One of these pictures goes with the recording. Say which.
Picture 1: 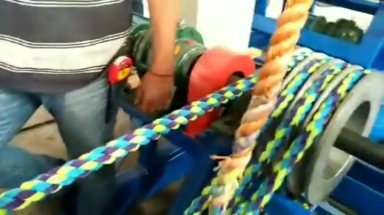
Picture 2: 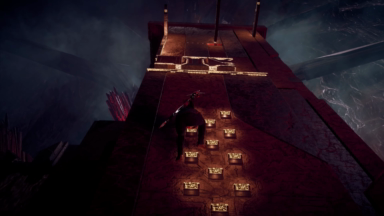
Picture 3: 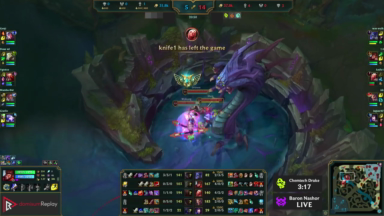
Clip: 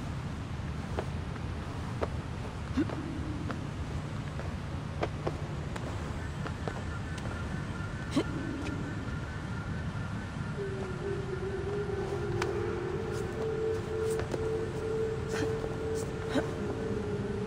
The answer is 2